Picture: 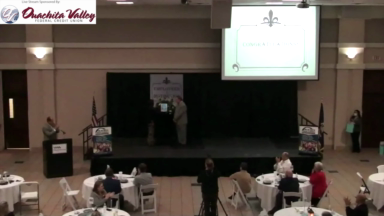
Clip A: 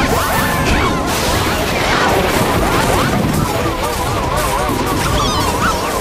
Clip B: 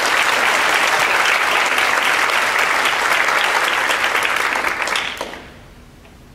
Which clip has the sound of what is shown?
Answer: B